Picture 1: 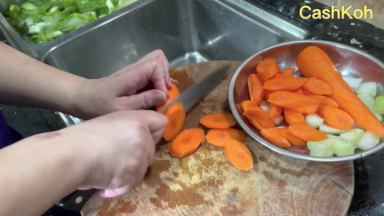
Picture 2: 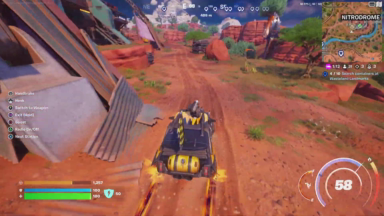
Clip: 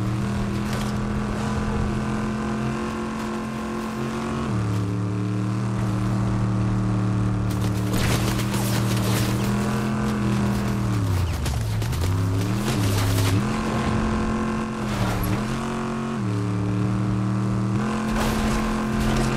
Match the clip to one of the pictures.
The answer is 2